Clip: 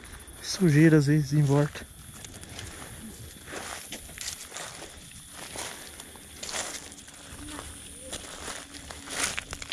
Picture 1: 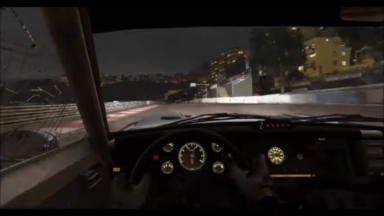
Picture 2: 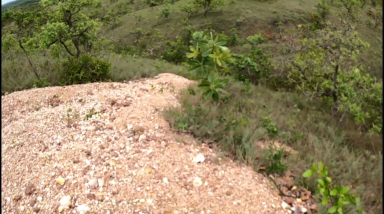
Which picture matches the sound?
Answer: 2